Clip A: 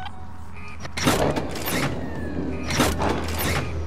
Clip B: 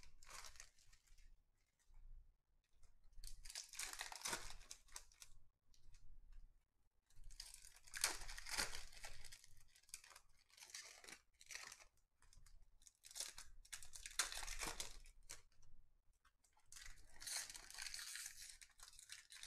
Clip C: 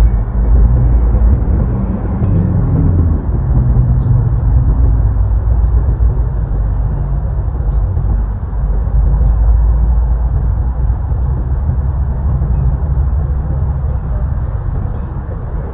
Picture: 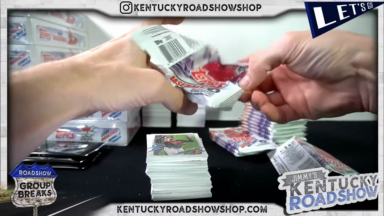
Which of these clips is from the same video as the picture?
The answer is B